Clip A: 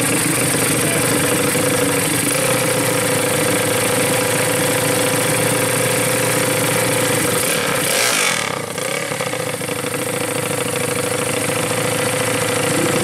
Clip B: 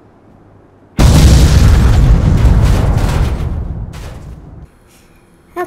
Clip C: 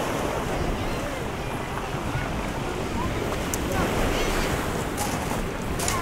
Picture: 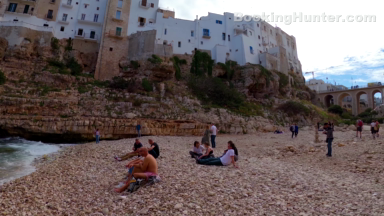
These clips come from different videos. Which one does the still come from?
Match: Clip C